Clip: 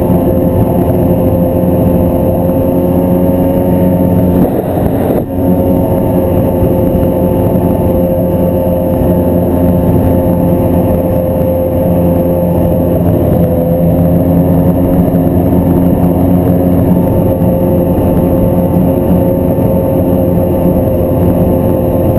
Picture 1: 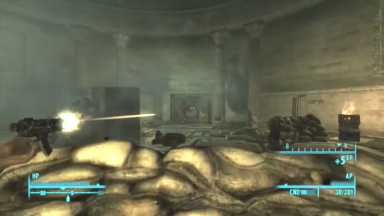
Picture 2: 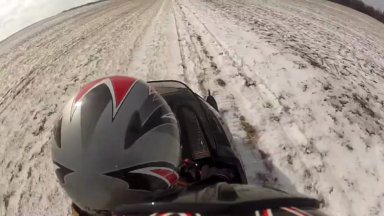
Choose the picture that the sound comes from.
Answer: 2